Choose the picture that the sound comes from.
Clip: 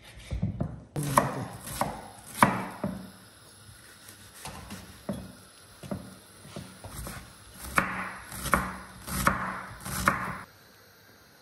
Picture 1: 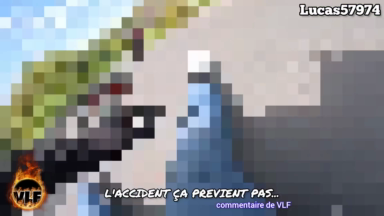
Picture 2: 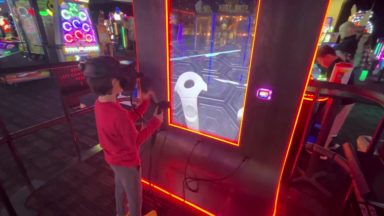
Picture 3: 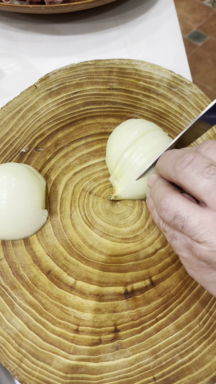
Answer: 3